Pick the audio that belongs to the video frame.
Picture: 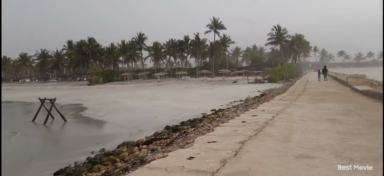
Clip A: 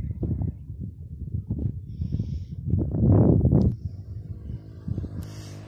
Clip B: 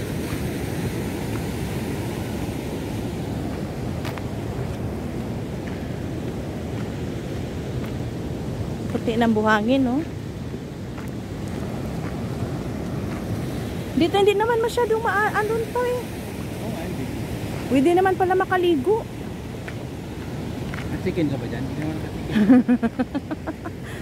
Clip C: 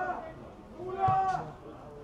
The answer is B